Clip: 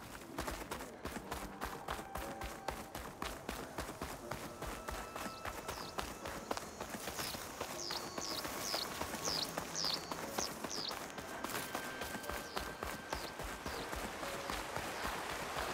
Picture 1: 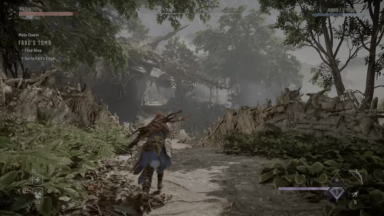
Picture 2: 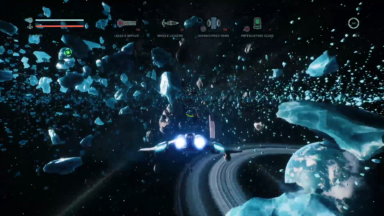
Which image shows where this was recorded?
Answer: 1